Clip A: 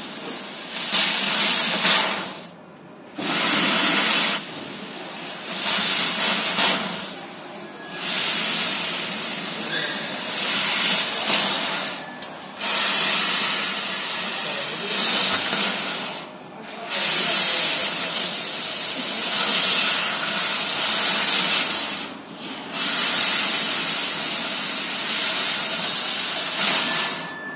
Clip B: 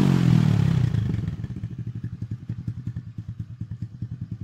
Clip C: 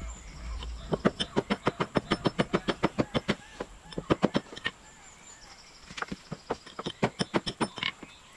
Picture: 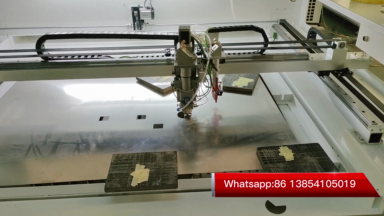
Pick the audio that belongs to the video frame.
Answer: A